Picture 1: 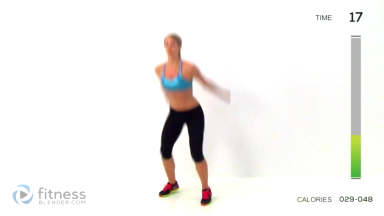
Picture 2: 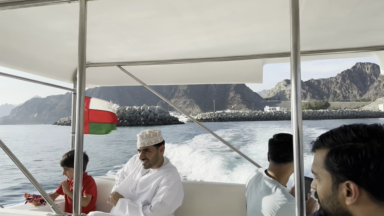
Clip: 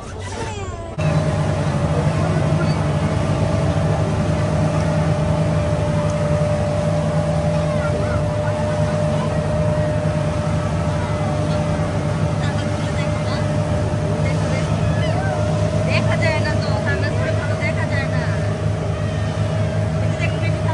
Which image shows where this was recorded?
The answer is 2